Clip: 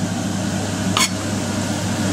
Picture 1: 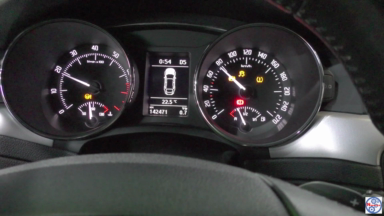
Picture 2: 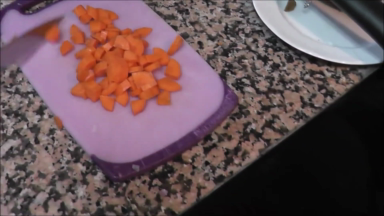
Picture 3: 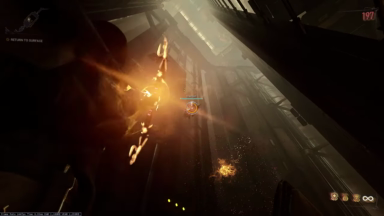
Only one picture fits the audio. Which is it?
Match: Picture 2